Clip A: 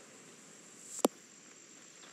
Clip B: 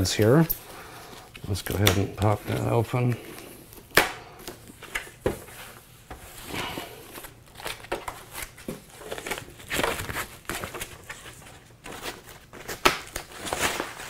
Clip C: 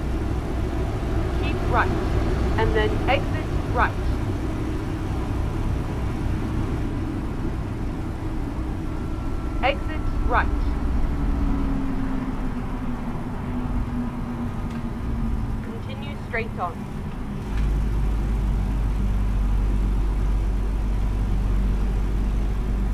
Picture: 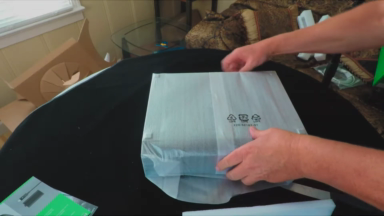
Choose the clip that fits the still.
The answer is B